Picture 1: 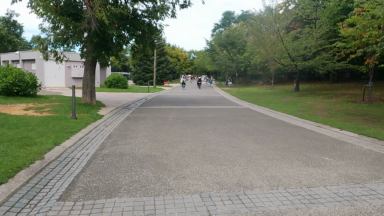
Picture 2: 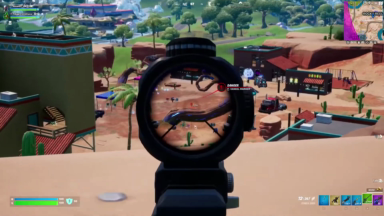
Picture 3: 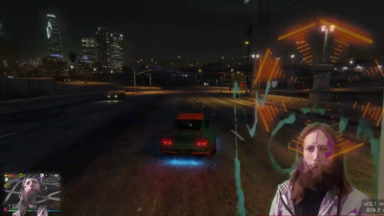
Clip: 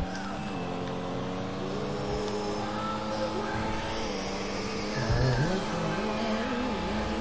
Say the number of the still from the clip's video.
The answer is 3